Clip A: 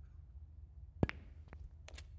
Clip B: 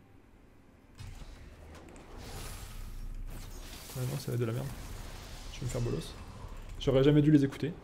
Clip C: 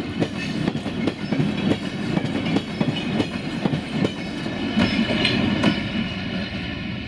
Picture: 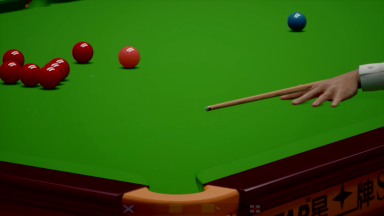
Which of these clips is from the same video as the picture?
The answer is A